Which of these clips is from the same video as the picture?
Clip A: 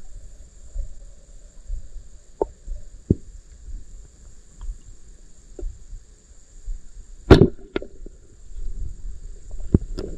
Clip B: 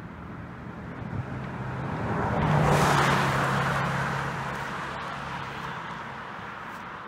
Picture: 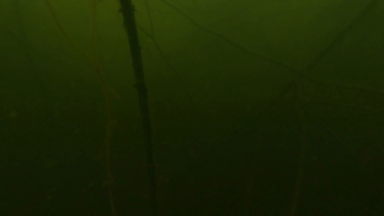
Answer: A